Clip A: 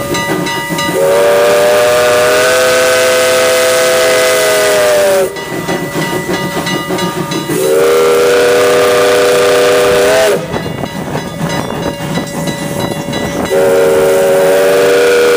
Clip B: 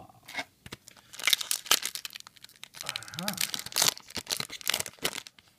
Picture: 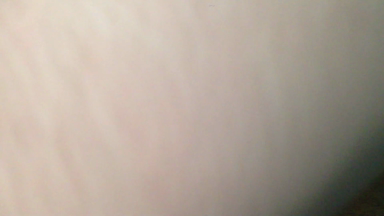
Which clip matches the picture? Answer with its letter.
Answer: B